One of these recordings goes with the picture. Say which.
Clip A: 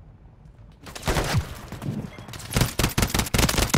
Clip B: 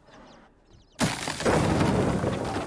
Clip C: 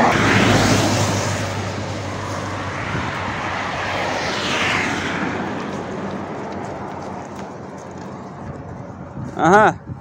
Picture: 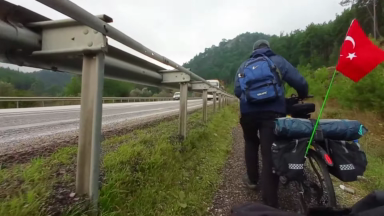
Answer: C